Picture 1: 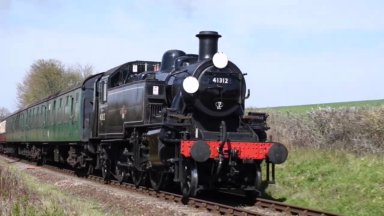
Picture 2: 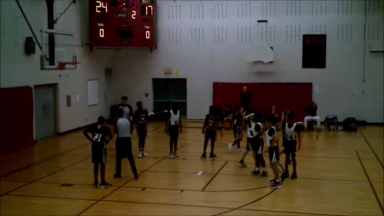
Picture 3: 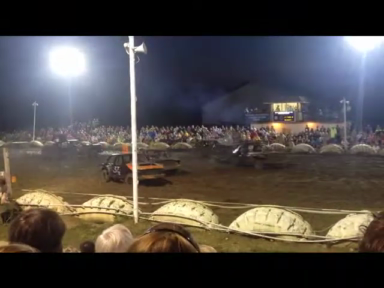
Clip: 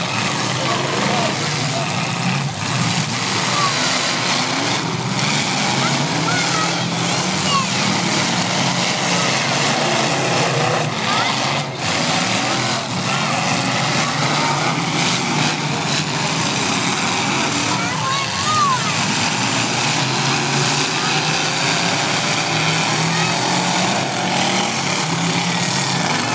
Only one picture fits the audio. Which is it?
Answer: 3